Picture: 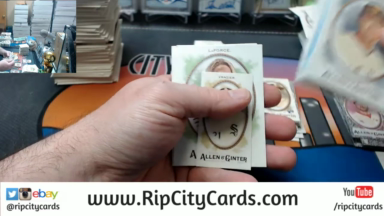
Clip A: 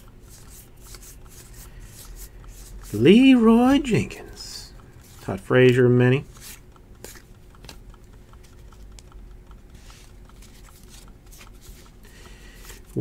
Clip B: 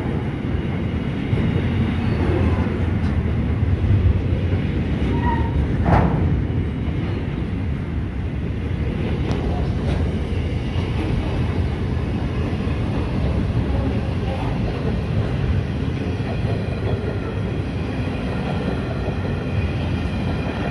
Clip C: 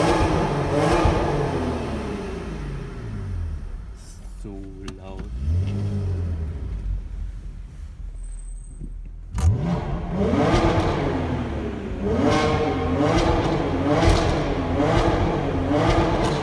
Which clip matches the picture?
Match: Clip A